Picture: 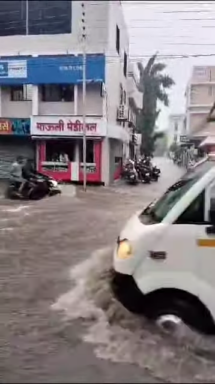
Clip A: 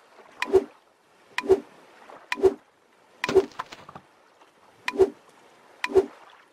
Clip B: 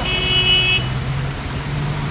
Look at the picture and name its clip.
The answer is B